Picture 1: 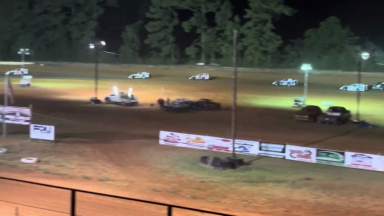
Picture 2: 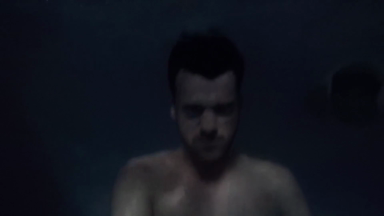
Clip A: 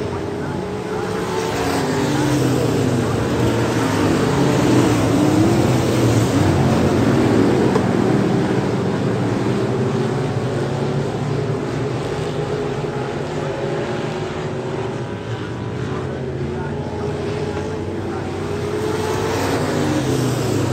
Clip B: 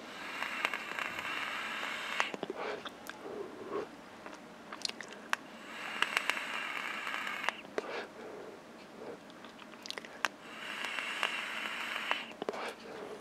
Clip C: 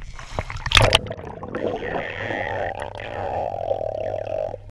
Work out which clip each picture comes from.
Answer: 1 A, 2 C